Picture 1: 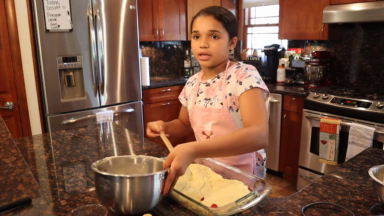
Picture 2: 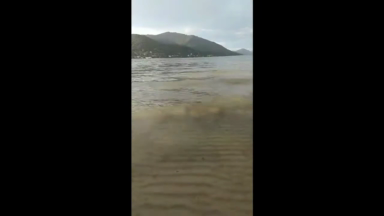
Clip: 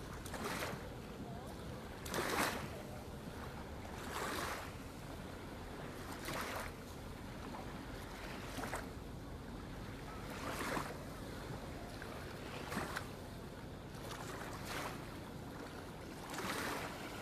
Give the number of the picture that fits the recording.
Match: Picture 2